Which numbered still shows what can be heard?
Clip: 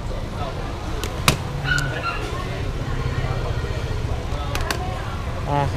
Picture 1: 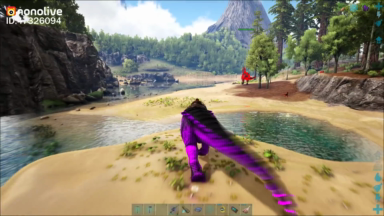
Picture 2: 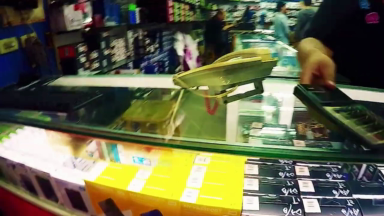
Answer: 2